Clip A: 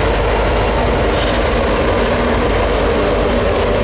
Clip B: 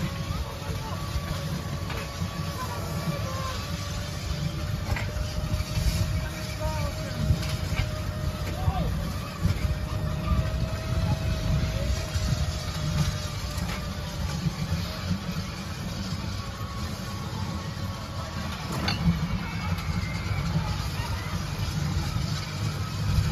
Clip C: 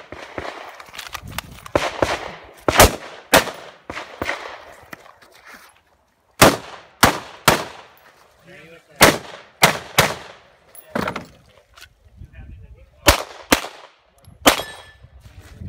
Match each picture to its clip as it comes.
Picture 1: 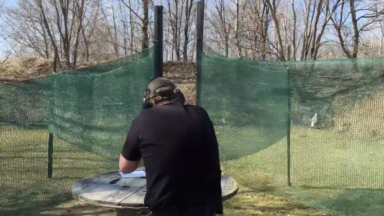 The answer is C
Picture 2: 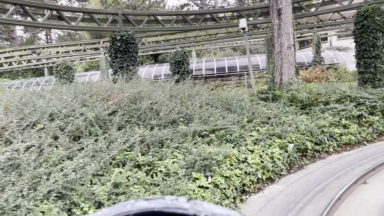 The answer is B